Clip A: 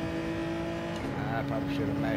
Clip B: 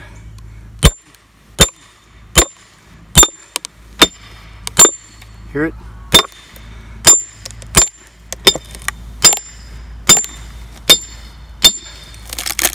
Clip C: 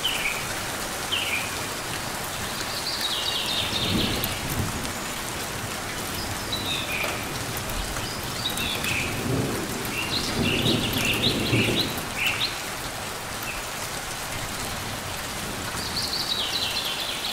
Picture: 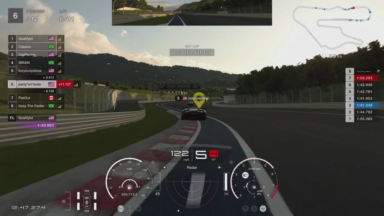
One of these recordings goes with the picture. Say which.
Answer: A